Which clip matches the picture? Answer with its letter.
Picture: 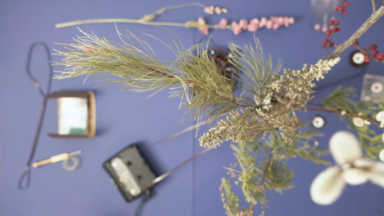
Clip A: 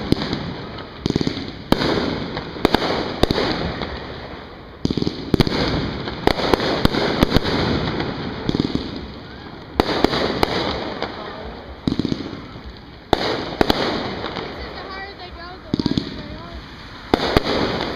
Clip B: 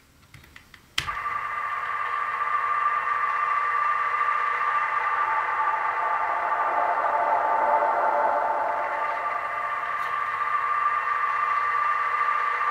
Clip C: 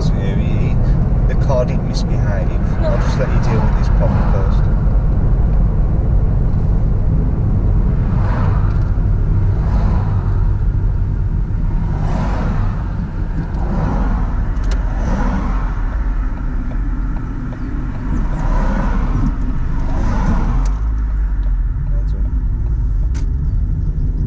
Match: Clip B